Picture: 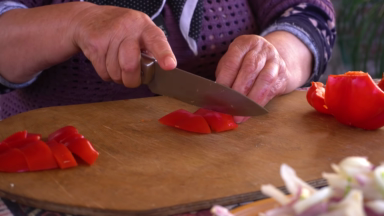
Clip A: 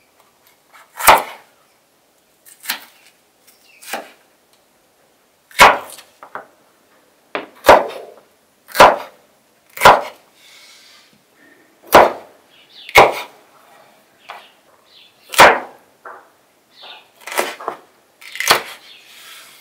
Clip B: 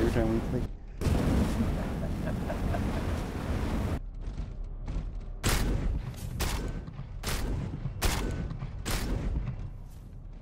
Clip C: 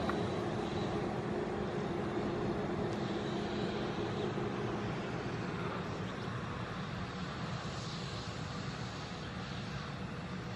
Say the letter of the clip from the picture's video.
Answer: A